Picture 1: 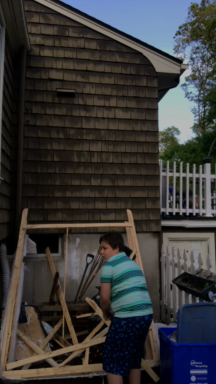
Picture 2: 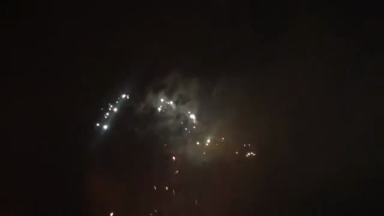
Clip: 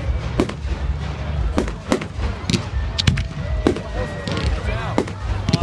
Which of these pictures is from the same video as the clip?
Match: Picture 2